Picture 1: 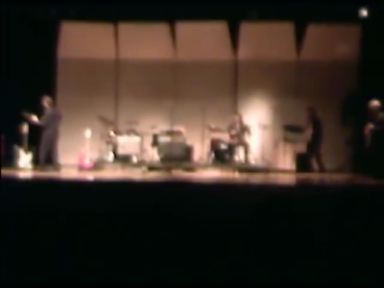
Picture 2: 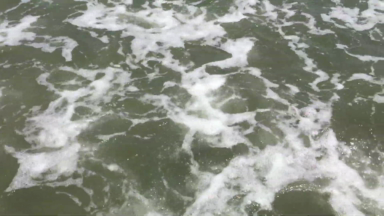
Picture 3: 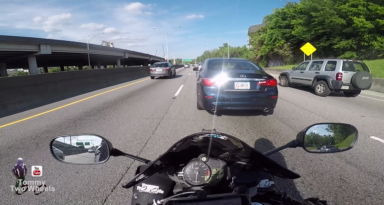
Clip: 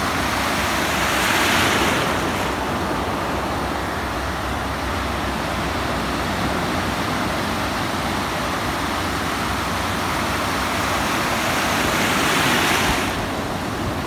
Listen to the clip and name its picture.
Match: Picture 2